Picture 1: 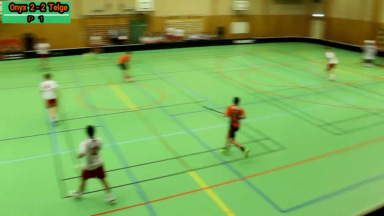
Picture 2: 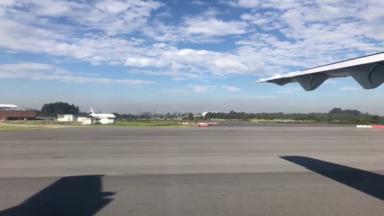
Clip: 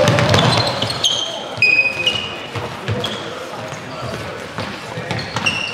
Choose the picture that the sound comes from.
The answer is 1